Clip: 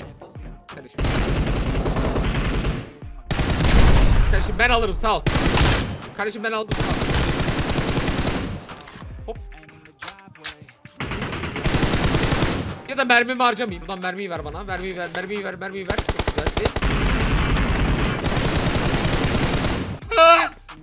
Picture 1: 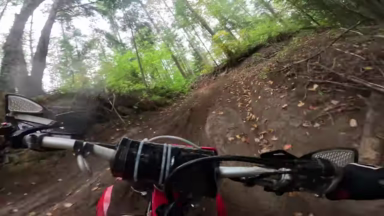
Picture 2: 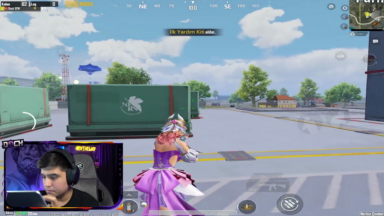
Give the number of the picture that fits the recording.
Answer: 2